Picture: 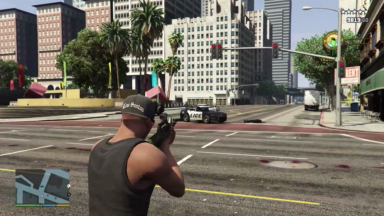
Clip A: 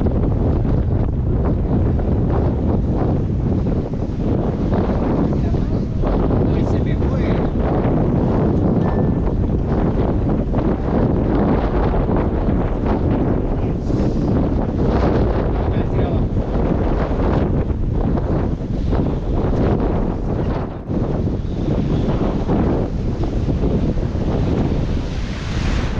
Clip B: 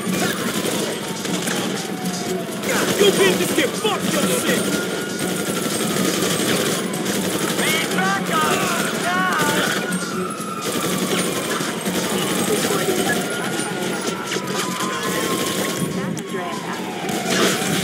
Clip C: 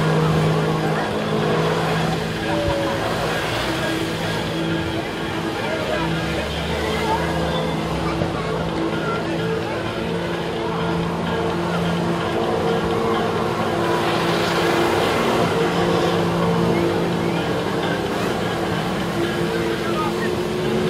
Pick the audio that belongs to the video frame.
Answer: B